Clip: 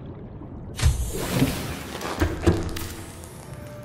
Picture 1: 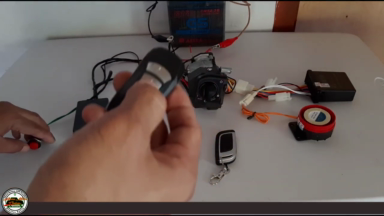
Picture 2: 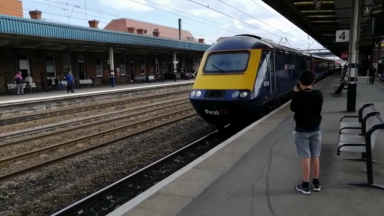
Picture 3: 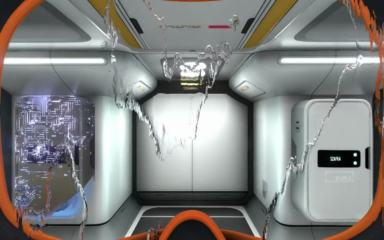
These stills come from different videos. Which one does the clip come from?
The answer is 3